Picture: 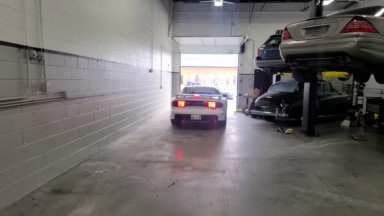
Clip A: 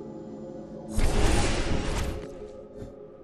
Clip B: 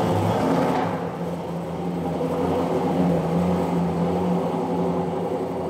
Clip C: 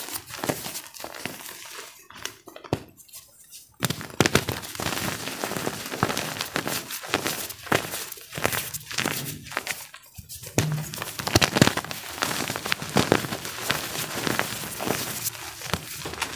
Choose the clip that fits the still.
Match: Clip B